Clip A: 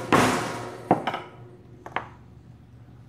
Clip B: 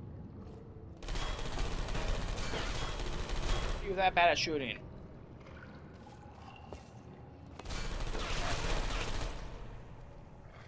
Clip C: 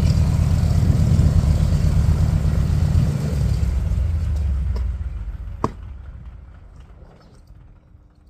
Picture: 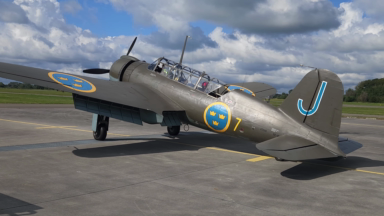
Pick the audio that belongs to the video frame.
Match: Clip C